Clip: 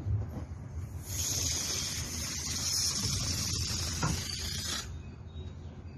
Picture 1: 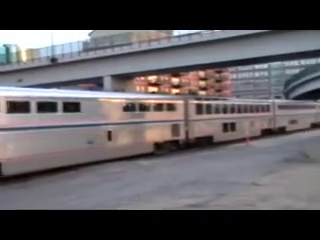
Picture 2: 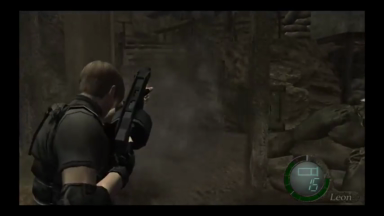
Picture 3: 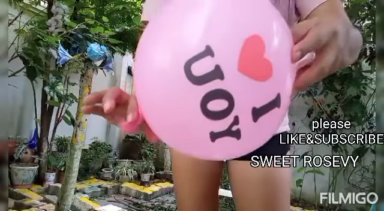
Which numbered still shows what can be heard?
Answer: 3